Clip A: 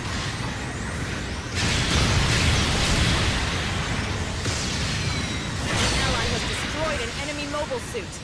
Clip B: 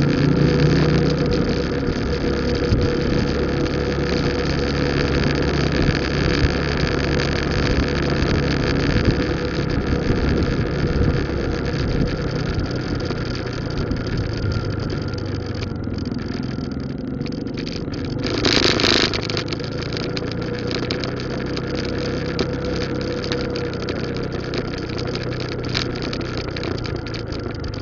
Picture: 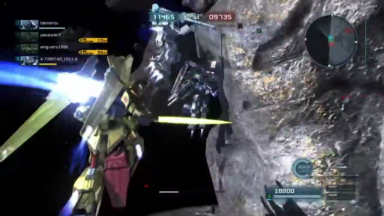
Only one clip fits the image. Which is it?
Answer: A